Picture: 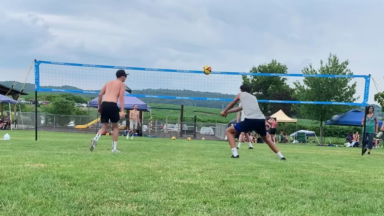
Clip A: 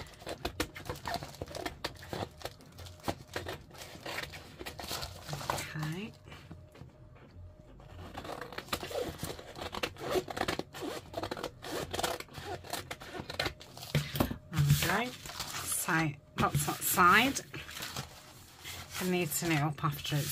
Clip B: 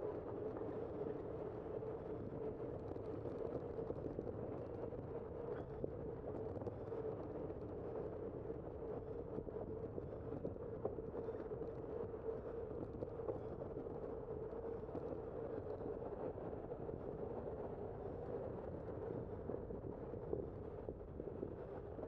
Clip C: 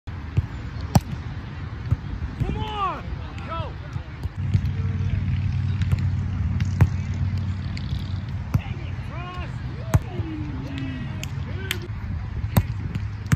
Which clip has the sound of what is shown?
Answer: C